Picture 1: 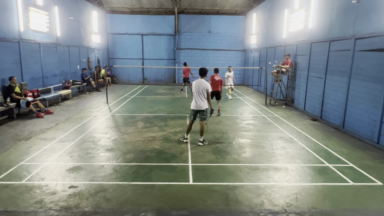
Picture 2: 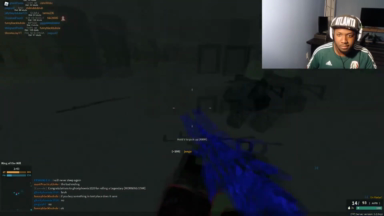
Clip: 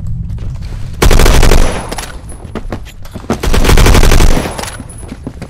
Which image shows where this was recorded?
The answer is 2